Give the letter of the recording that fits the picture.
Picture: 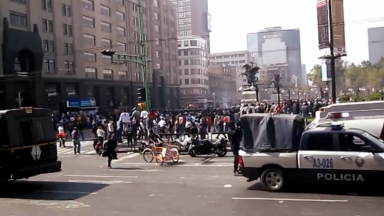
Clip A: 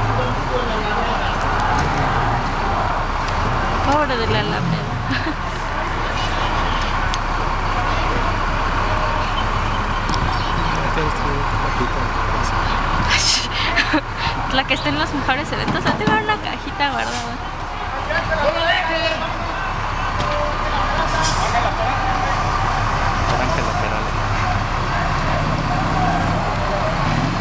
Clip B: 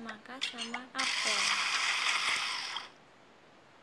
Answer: A